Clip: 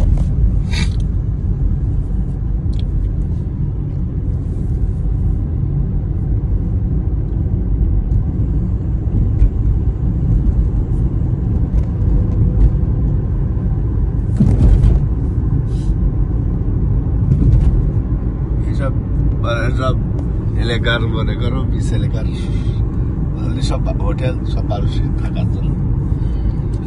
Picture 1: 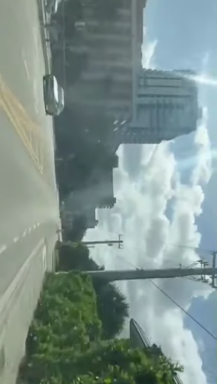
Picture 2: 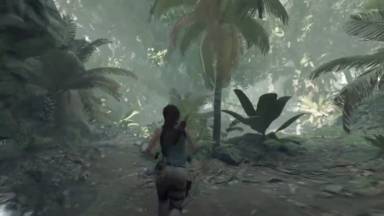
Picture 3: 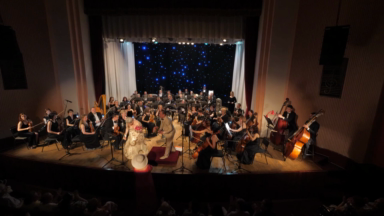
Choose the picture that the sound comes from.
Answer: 1